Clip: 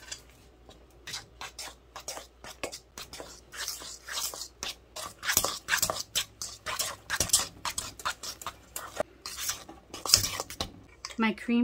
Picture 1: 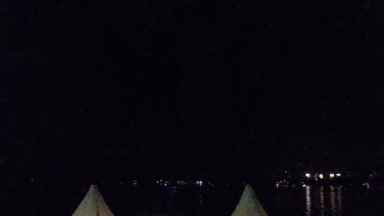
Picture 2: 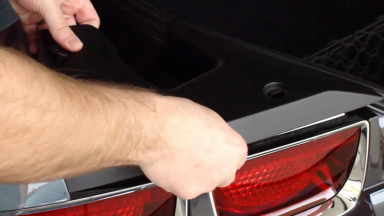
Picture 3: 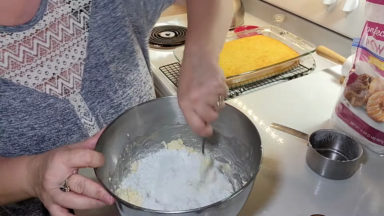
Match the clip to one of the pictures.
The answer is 3